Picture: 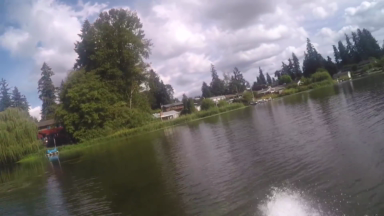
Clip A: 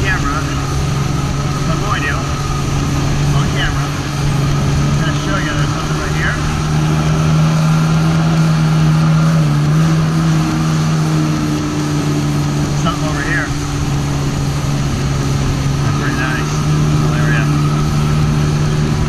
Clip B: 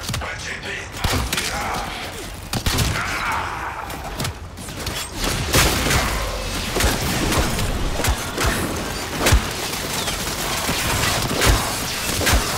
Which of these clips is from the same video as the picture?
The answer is A